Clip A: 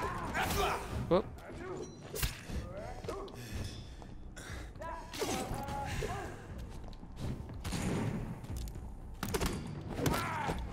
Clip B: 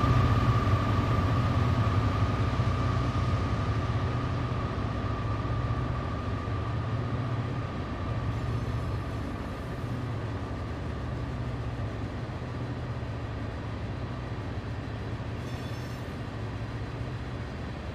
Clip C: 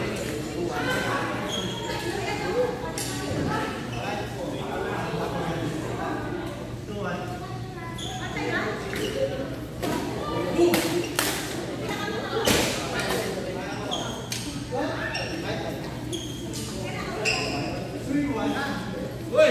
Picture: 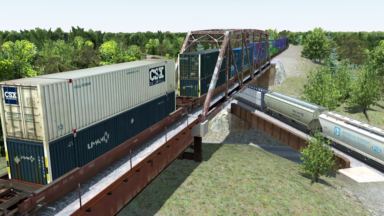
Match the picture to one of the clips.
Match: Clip B